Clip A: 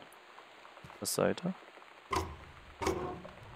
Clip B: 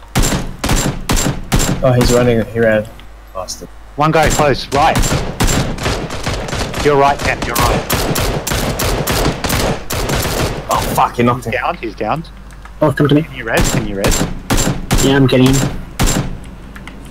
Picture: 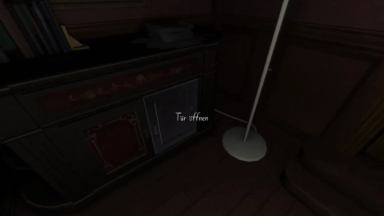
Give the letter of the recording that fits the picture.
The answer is A